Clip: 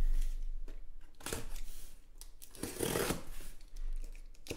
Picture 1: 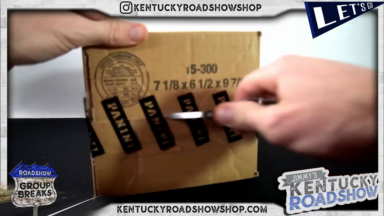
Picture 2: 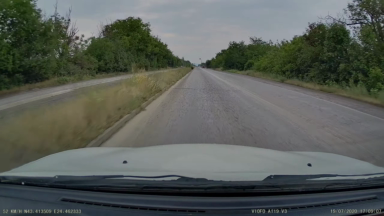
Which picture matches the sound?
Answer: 1